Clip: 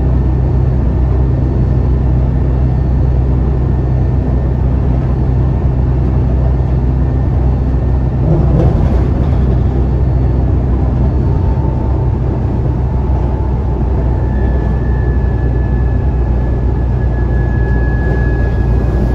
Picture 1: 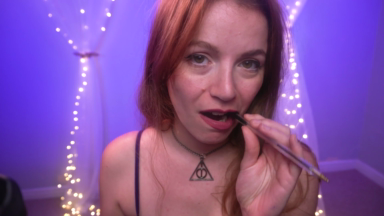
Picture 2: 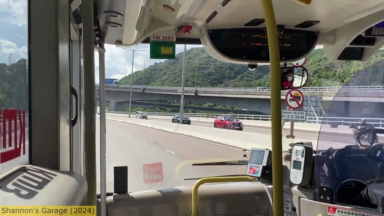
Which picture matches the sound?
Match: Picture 2